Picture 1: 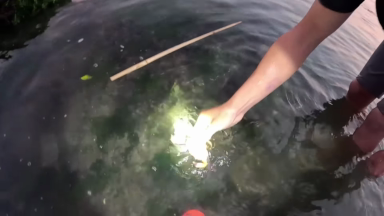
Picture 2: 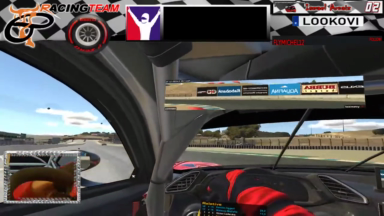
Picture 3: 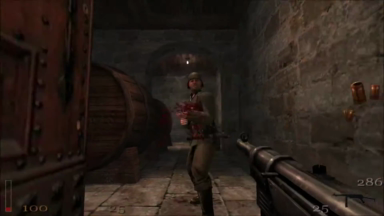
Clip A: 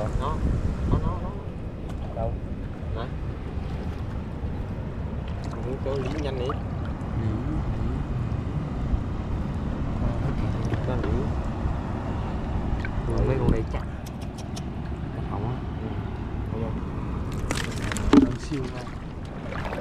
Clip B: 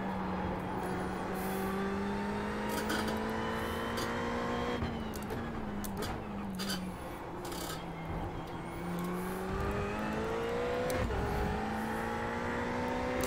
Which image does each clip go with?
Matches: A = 1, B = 2